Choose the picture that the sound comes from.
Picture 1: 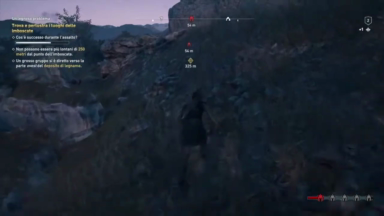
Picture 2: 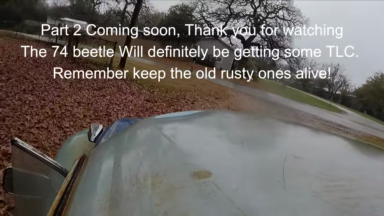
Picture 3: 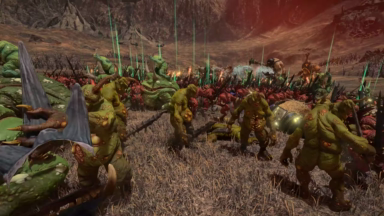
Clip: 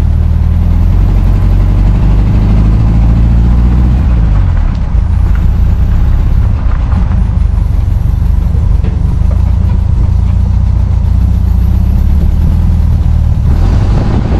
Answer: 2